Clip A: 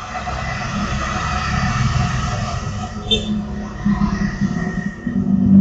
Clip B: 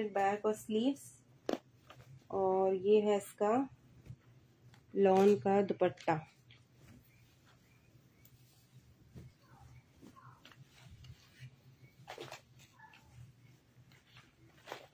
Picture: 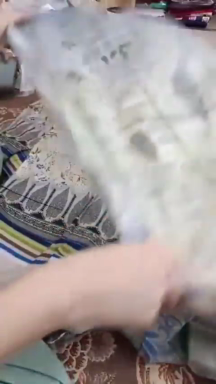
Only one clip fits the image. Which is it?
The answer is B